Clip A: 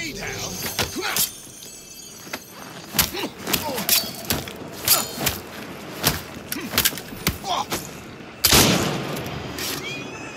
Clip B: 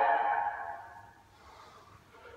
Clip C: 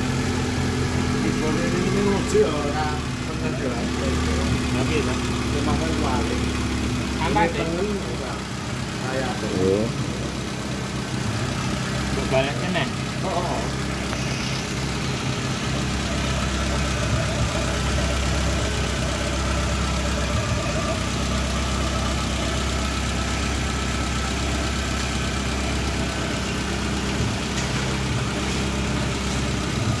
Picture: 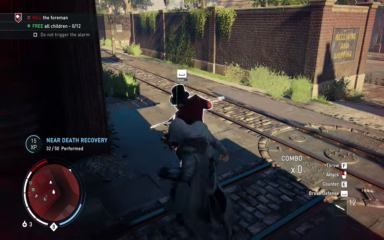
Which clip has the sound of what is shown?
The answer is A